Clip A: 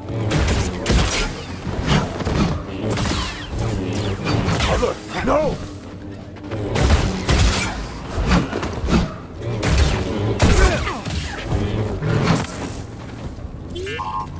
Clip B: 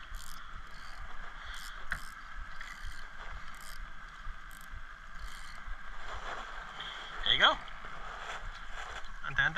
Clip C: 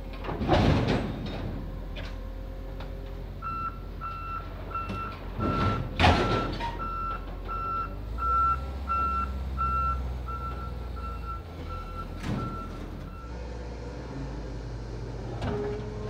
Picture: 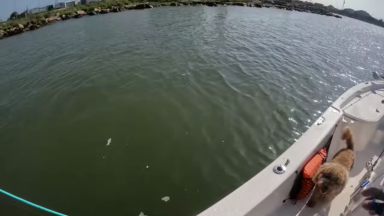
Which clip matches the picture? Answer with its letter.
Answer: B